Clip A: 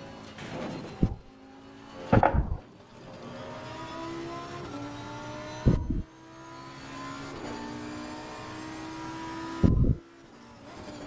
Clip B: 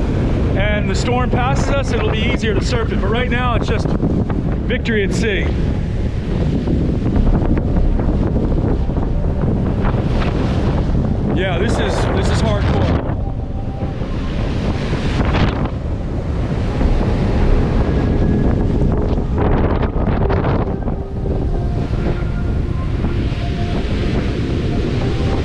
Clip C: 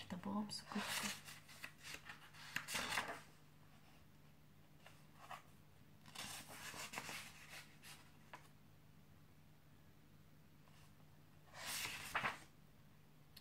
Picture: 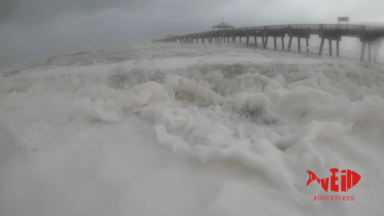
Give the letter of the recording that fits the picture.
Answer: B